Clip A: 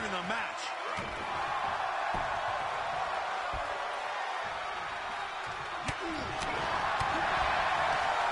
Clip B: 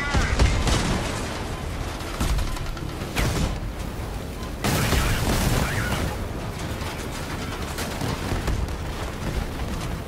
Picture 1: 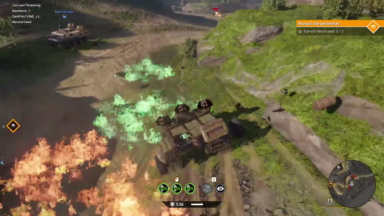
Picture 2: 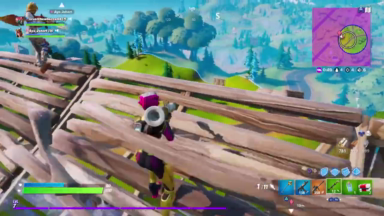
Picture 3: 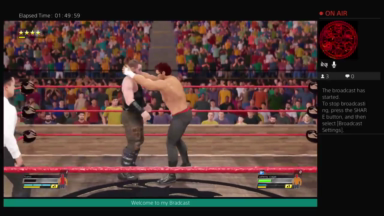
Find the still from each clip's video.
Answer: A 3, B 1